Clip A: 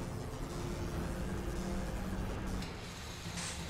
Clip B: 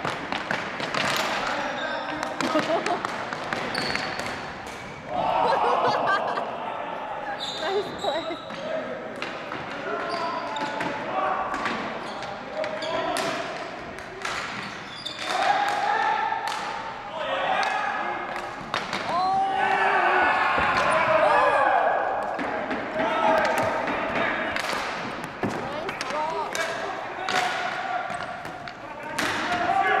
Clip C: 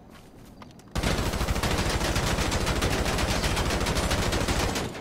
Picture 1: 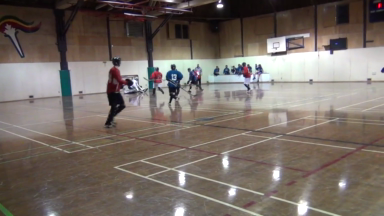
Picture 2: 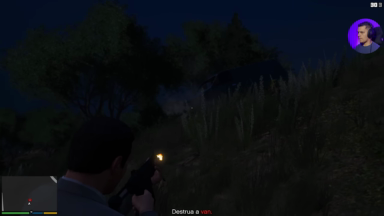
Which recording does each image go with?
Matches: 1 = B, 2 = C